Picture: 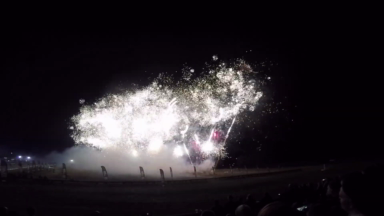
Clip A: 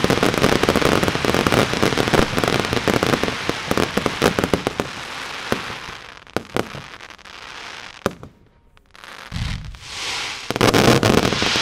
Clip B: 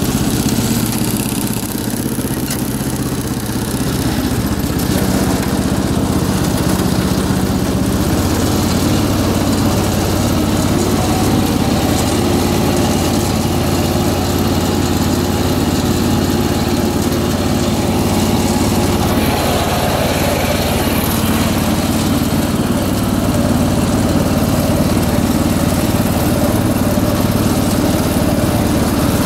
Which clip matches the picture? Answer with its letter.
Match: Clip A